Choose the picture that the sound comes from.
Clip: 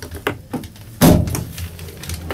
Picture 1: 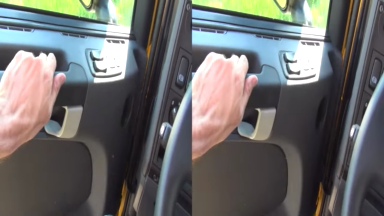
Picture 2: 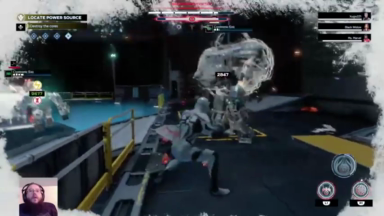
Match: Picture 1